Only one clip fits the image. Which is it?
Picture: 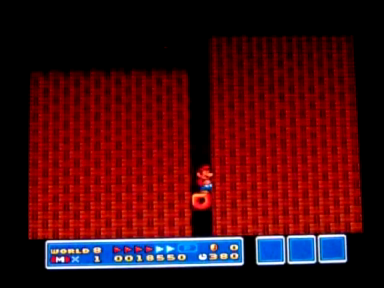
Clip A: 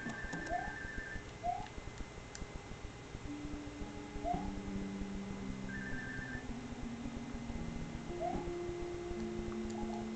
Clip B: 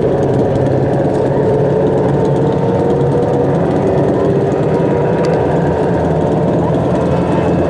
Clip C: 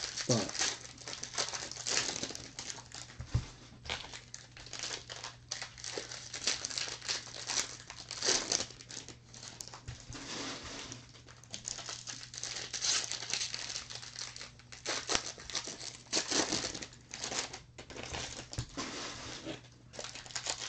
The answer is A